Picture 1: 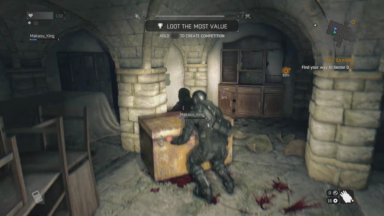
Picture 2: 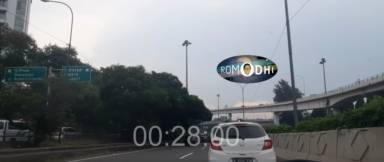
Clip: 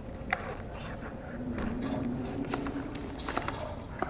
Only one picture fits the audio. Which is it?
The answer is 1